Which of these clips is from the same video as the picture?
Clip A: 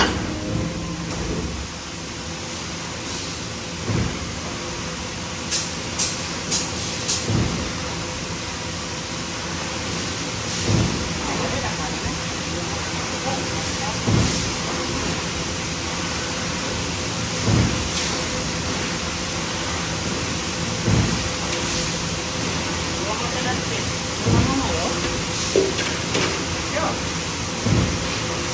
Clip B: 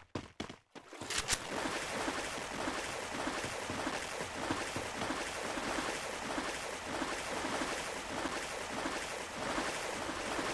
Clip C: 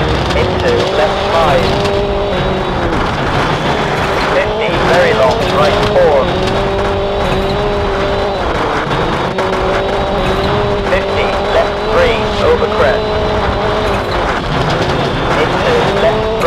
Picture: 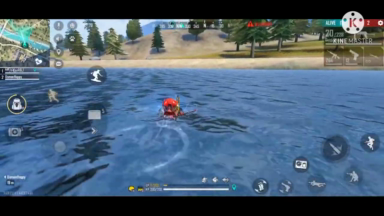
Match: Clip B